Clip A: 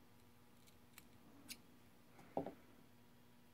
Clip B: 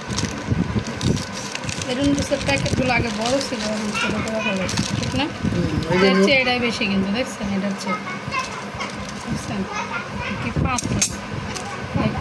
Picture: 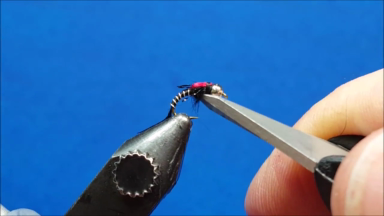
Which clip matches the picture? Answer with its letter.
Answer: A